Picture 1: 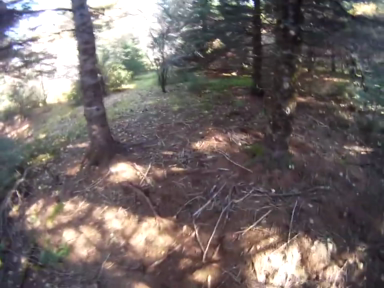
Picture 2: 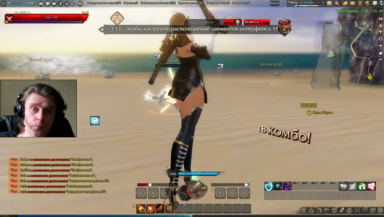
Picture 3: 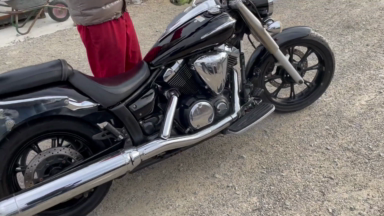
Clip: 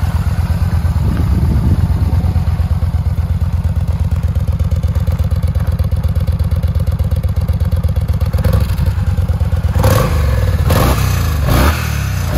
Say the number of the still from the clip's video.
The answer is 3